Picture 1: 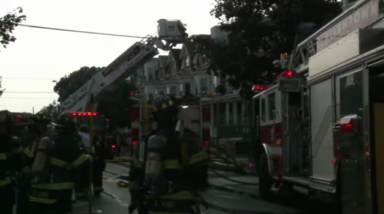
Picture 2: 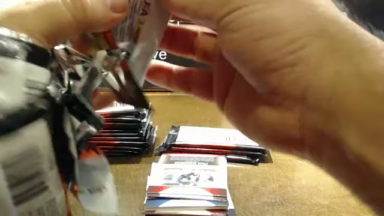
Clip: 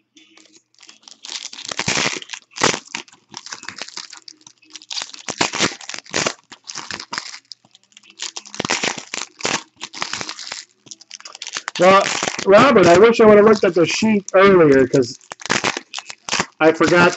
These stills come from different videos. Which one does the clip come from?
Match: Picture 2